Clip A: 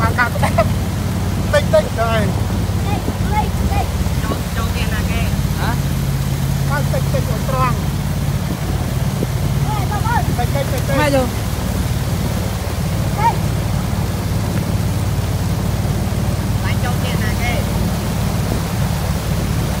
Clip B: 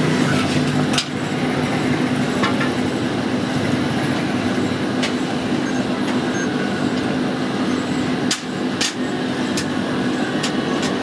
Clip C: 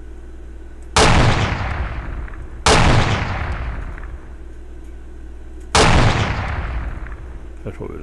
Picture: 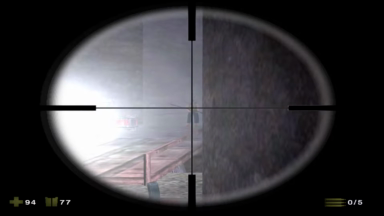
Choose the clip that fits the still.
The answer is C